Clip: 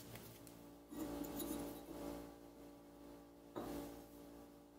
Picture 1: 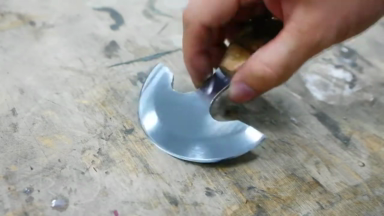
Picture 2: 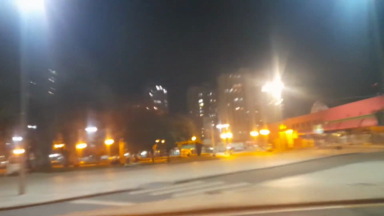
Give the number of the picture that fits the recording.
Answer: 1